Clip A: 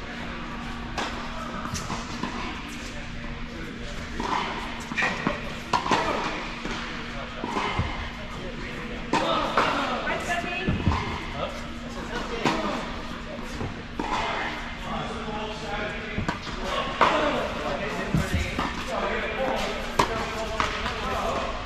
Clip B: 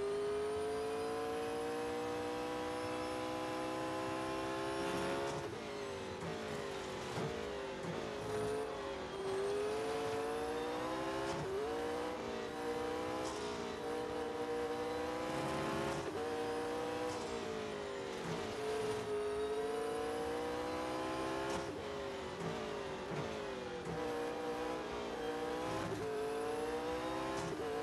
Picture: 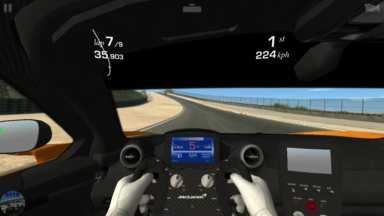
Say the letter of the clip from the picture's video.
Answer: B